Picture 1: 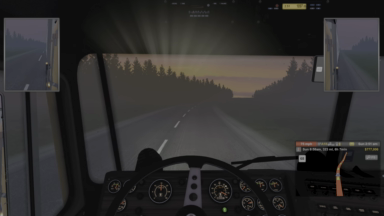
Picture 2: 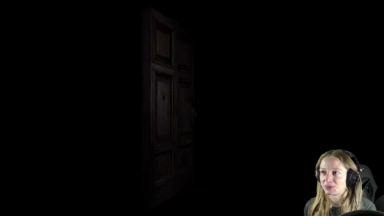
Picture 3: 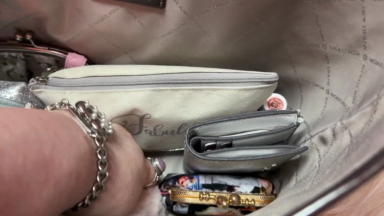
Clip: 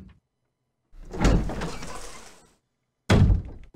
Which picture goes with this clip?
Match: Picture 2